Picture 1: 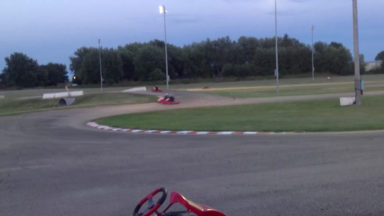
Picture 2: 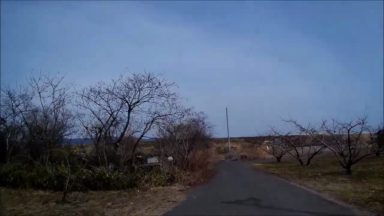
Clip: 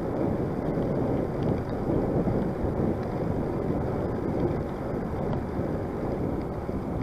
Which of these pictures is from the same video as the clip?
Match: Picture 2